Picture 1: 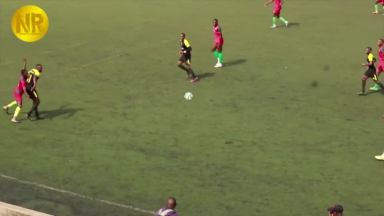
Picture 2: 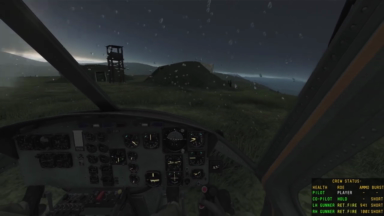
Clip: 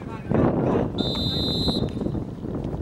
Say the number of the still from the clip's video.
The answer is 1